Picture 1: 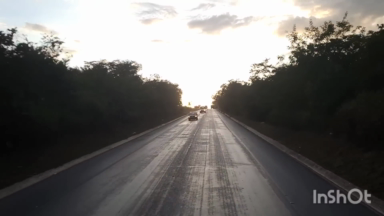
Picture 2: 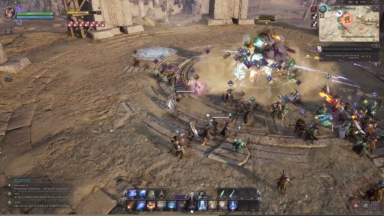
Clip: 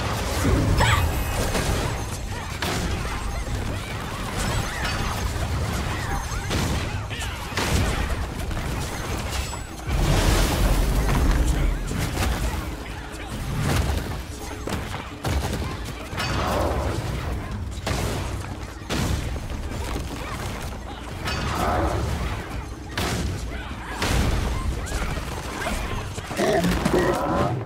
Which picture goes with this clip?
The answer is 2